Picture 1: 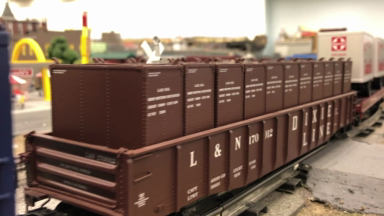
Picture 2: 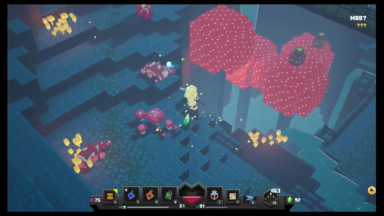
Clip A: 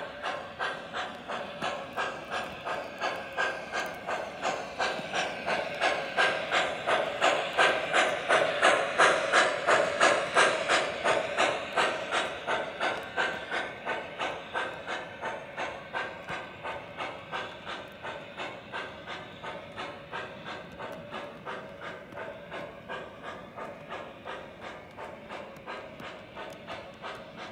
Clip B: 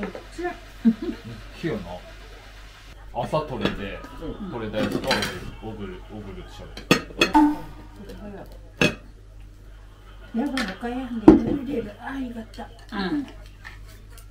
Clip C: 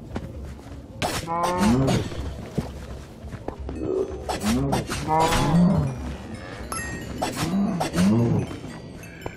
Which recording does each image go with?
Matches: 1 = A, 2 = C